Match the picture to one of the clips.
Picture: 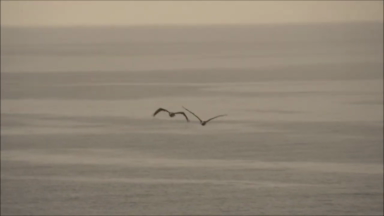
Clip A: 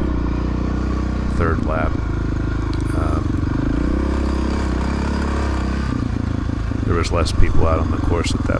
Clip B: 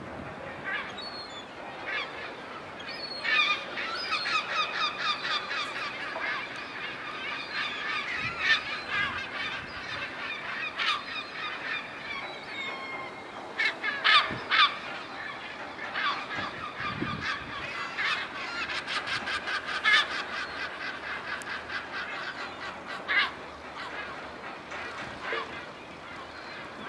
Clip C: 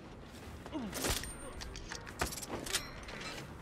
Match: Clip B